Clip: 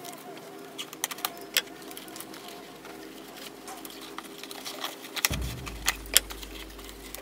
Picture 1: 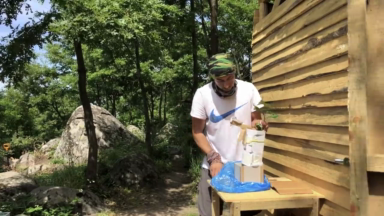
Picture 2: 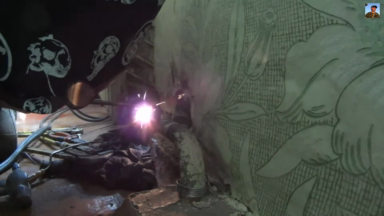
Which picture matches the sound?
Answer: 1